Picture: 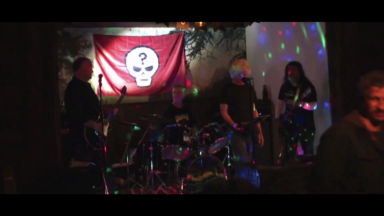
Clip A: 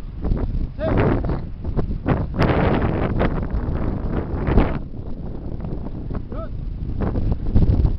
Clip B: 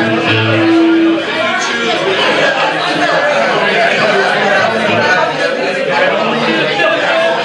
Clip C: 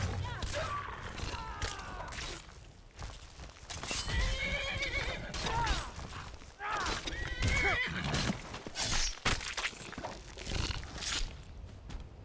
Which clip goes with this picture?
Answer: B